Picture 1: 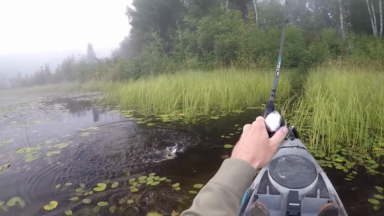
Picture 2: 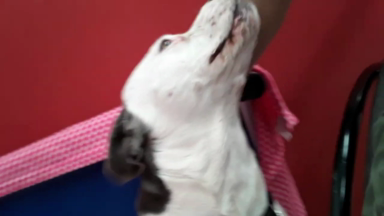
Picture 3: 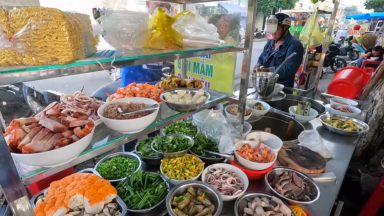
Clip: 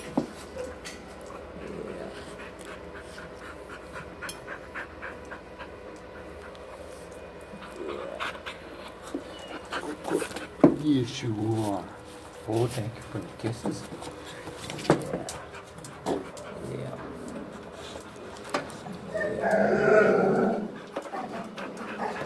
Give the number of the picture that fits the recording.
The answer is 2